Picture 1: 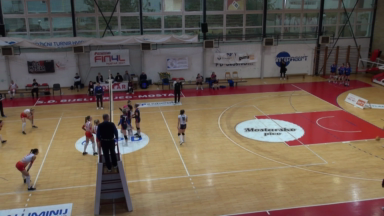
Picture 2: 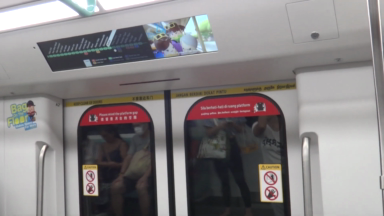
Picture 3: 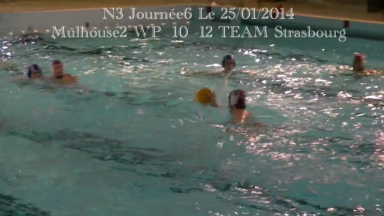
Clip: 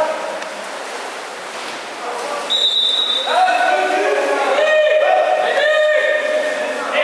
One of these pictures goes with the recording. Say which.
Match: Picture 3